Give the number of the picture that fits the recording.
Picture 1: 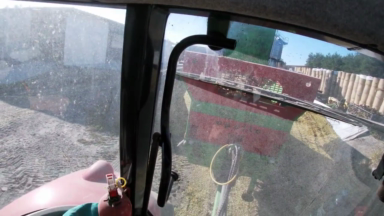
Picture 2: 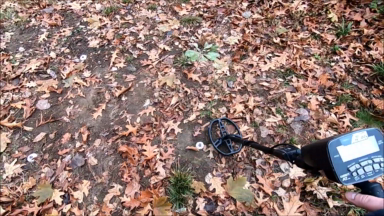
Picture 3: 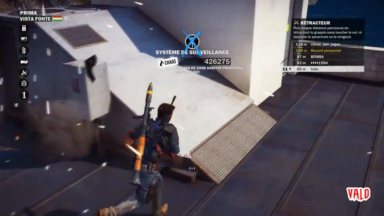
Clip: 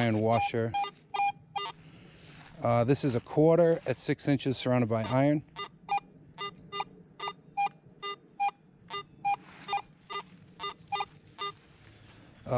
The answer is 2